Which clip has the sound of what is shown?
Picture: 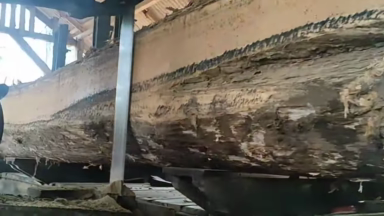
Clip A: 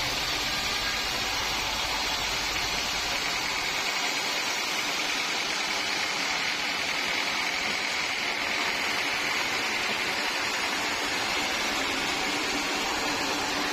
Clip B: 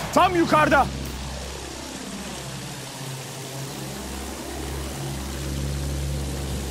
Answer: A